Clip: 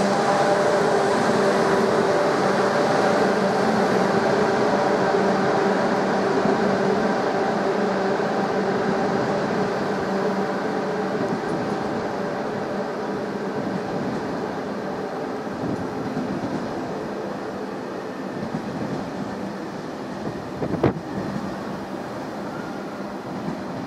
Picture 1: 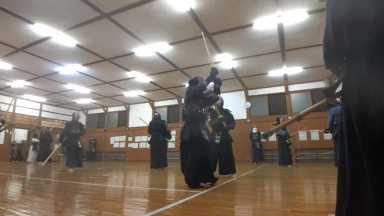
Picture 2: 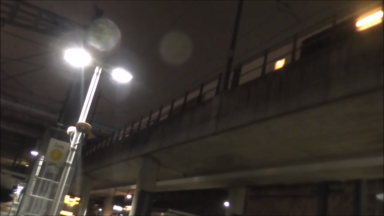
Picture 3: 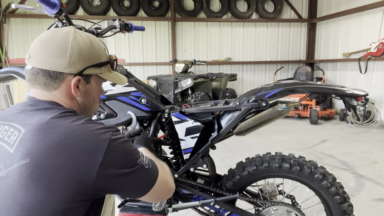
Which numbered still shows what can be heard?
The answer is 2